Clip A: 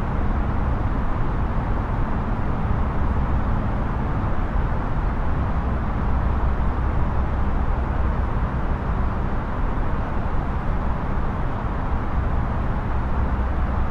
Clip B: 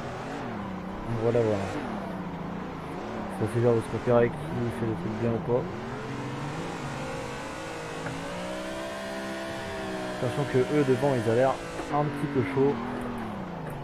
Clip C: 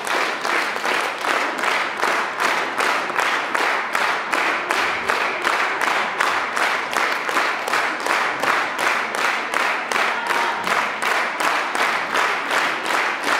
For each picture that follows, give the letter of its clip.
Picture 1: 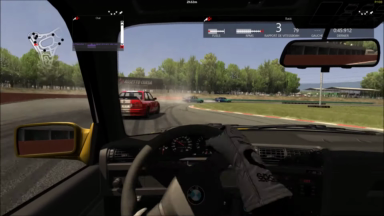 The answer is B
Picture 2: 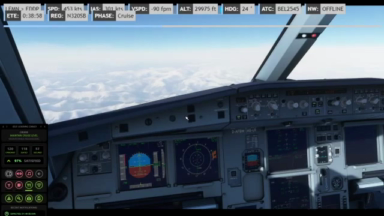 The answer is A